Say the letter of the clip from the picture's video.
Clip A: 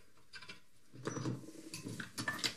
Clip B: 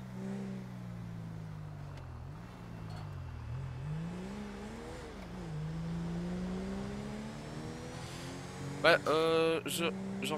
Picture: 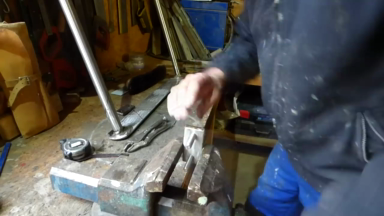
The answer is A